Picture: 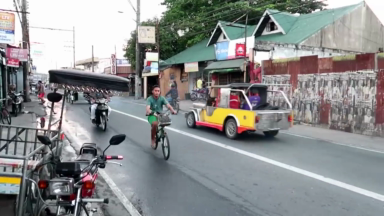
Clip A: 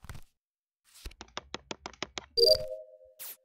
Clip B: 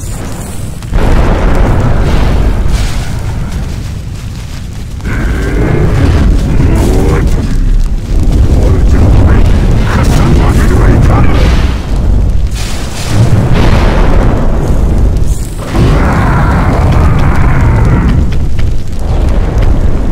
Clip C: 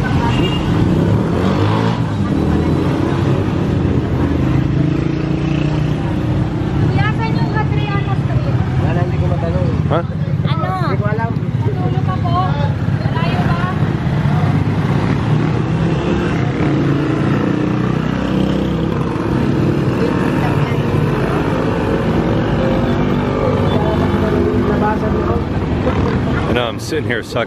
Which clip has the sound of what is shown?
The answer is C